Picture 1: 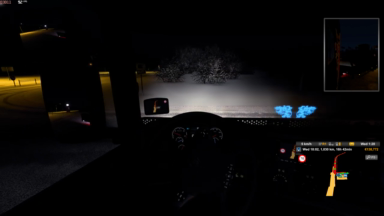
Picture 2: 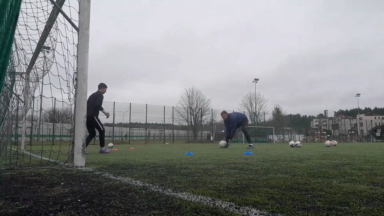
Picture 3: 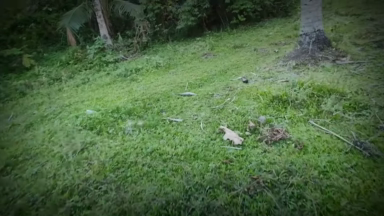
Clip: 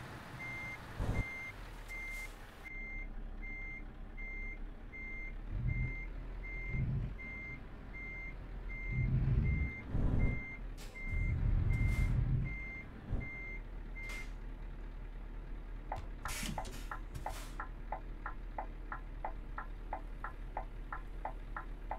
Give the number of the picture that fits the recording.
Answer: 1